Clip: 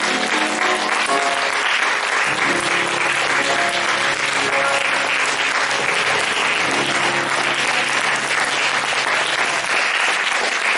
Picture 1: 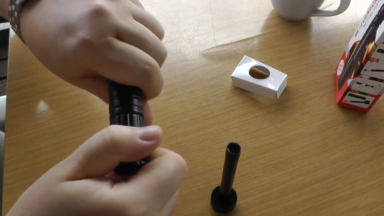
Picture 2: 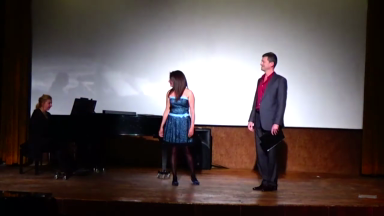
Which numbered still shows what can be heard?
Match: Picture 2